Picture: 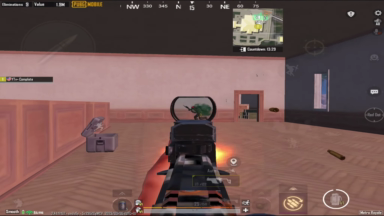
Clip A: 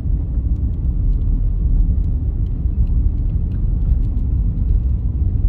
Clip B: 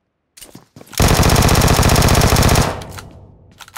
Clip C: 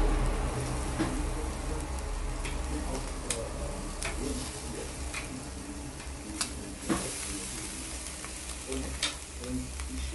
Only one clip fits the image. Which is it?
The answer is B